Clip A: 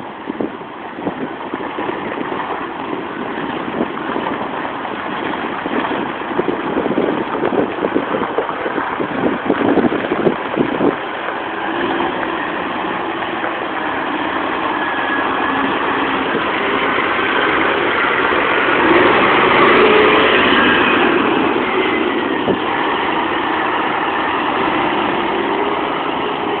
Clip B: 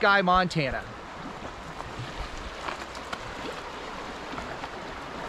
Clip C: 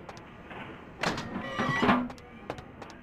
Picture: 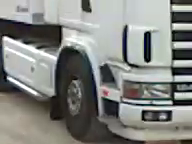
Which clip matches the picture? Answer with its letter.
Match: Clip A